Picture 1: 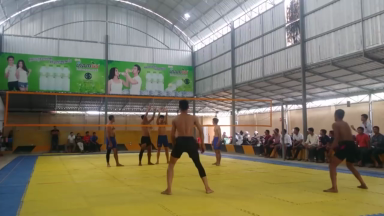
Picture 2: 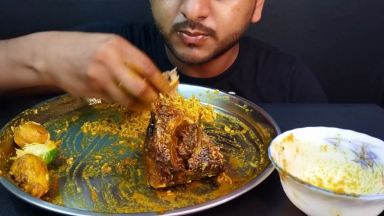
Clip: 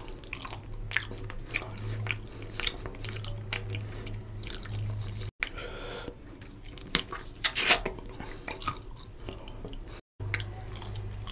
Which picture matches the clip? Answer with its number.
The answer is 2